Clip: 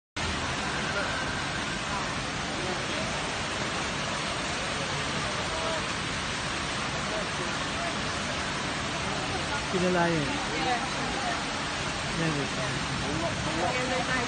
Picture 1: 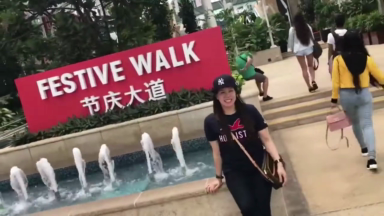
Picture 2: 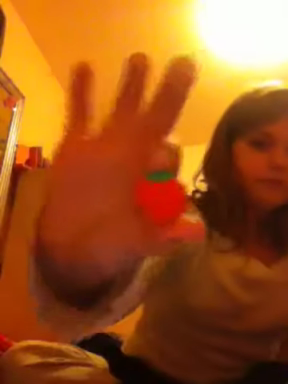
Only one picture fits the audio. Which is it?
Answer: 1